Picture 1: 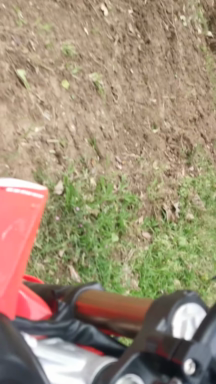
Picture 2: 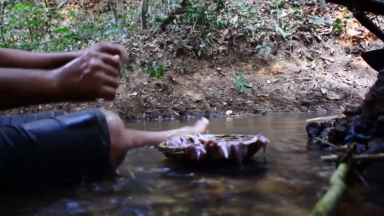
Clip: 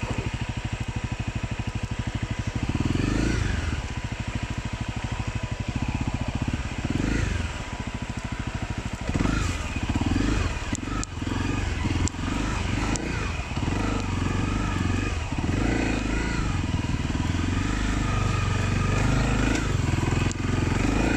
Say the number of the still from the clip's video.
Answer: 1